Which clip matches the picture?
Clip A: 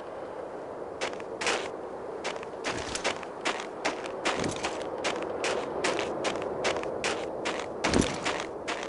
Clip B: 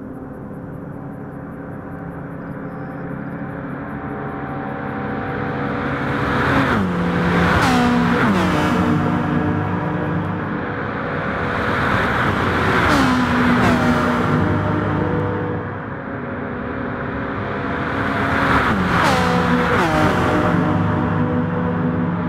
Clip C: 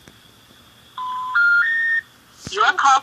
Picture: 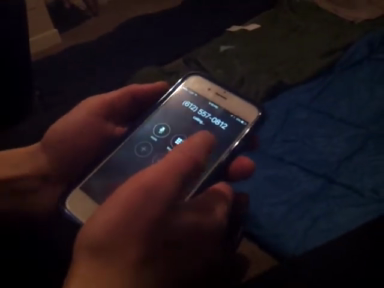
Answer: C